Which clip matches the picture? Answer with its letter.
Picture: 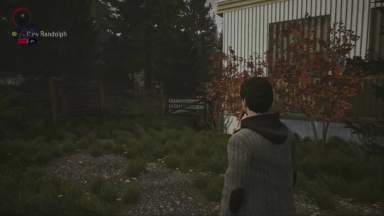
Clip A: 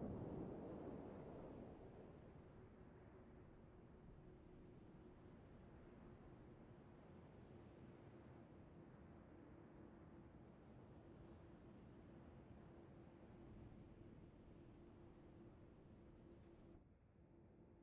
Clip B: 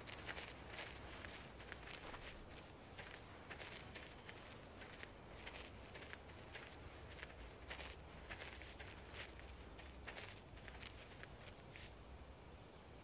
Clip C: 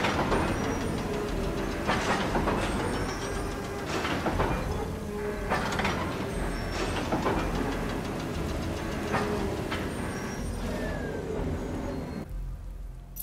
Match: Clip B